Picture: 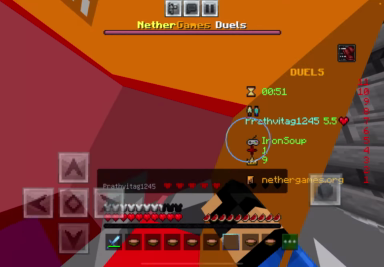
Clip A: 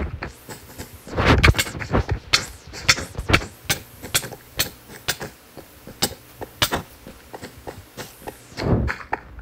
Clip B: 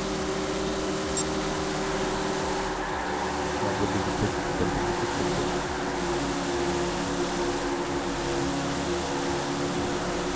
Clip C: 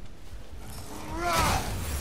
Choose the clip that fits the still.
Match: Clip A